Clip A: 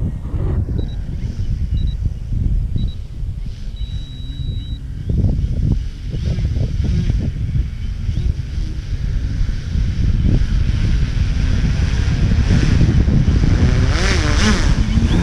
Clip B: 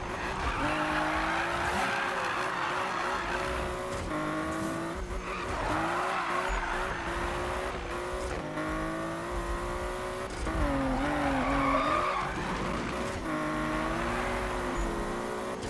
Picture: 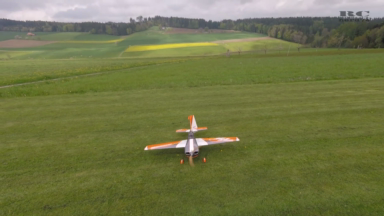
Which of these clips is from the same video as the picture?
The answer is A